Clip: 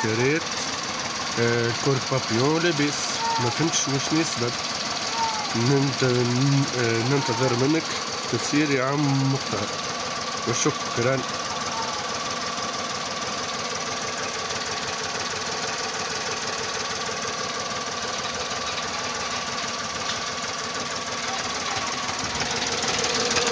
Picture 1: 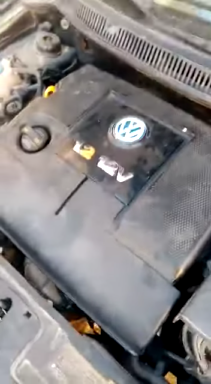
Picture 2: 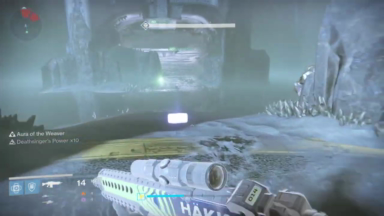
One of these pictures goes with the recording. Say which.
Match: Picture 1